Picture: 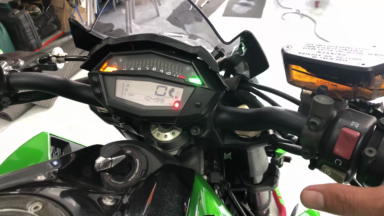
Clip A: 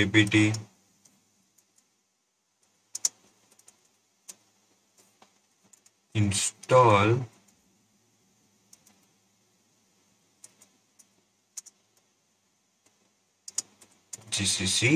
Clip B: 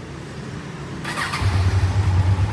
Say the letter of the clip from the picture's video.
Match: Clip B